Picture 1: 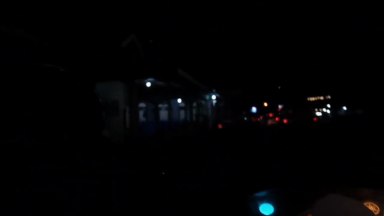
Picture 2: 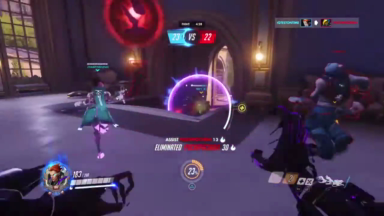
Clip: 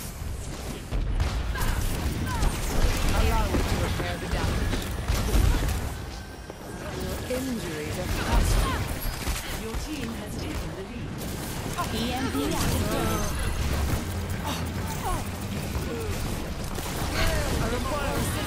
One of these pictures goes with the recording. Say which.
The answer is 2